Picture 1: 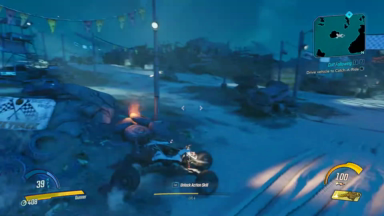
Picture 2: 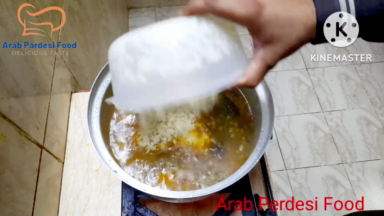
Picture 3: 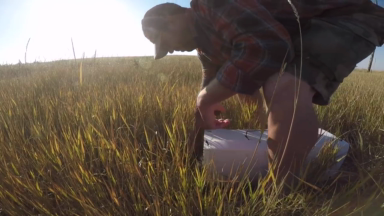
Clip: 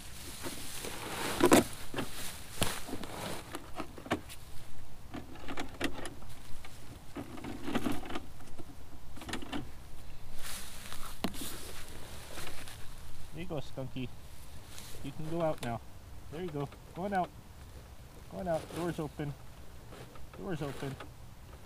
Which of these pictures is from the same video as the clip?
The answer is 3